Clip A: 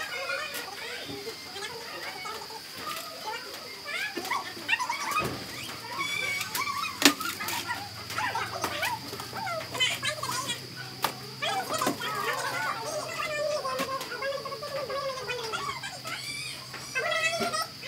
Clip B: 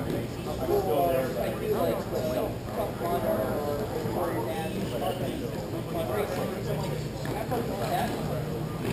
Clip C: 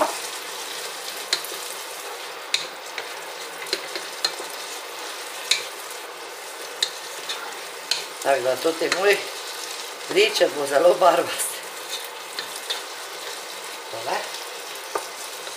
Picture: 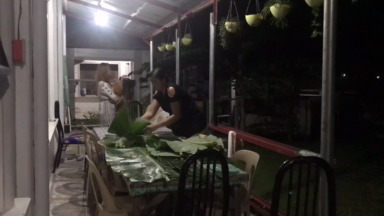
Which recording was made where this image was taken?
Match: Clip A